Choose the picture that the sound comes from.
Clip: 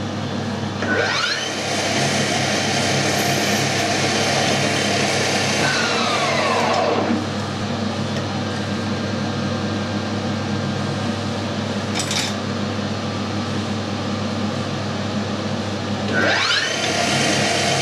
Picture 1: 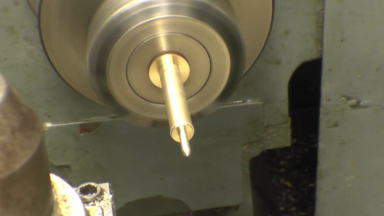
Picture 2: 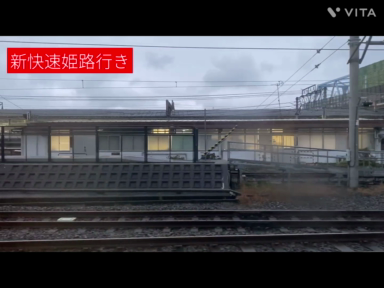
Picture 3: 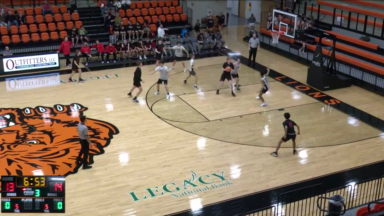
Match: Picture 1